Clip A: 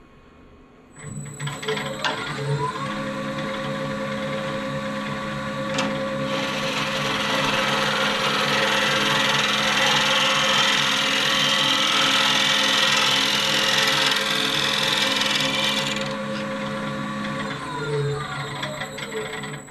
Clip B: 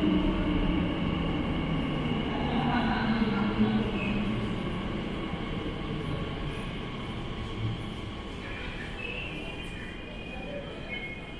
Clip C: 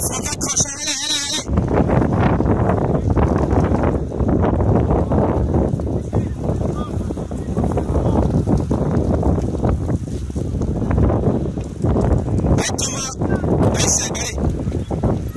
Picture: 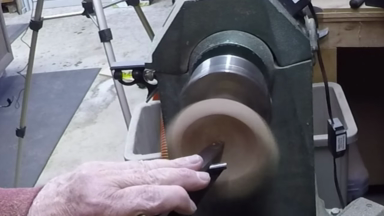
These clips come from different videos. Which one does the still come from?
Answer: A